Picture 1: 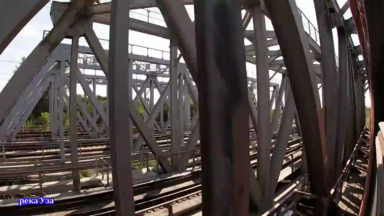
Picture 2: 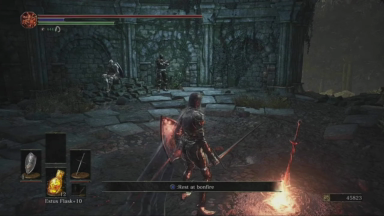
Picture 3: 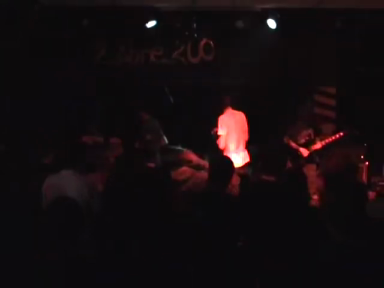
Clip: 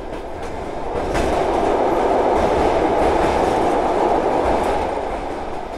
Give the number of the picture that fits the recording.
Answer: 1